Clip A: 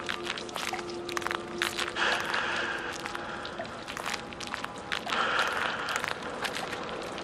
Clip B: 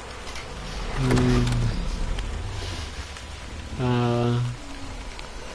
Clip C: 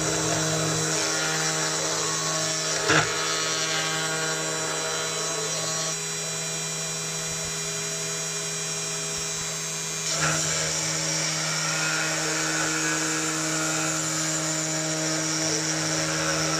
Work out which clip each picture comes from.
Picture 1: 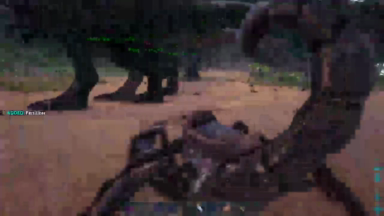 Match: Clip B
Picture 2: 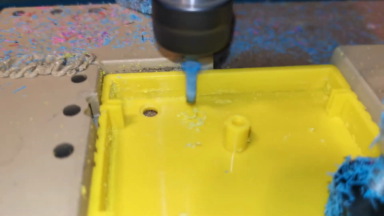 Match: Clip C